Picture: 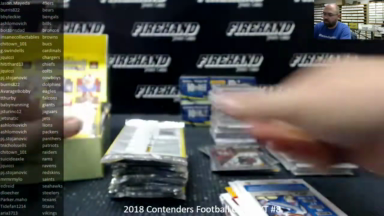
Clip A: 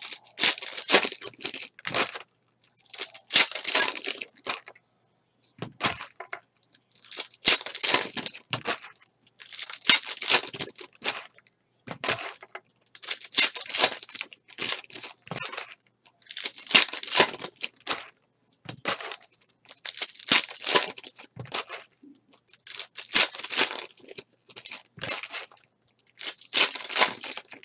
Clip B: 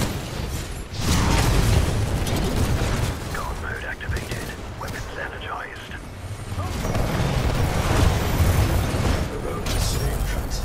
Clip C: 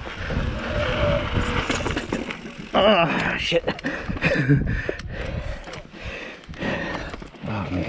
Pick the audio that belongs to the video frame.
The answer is A